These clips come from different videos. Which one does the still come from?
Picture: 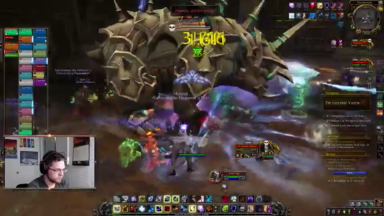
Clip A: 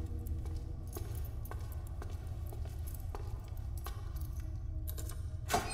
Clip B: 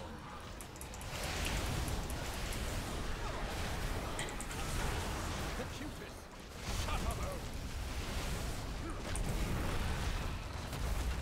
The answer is B